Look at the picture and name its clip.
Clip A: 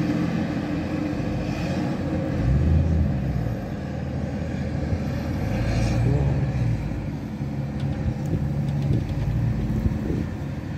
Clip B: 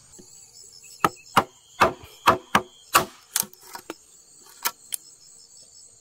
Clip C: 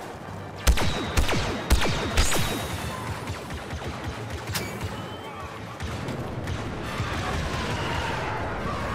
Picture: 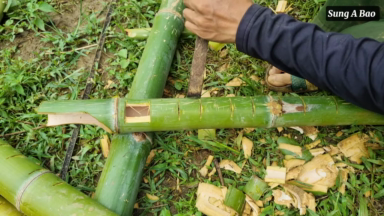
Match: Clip B